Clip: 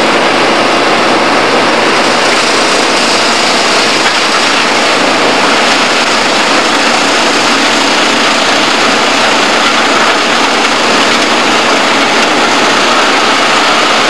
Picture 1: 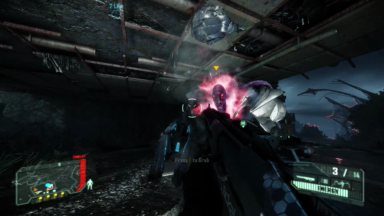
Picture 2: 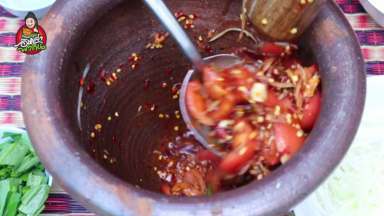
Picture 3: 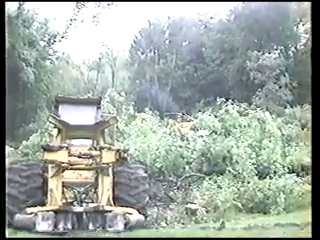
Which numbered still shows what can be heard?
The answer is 3